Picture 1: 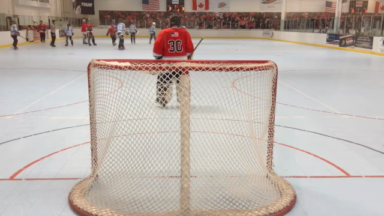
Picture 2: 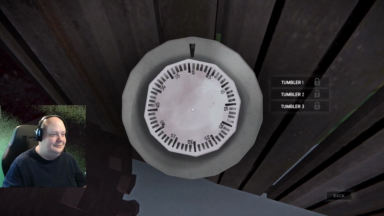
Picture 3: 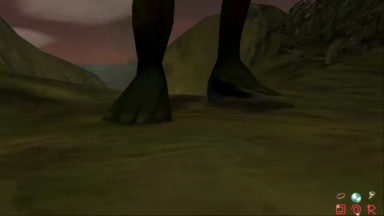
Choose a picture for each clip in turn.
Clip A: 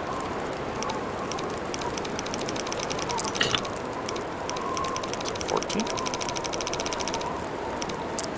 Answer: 2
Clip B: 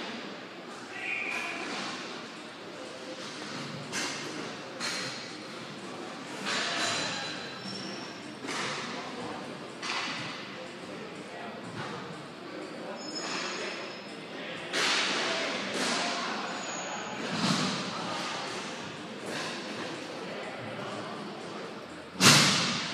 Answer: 1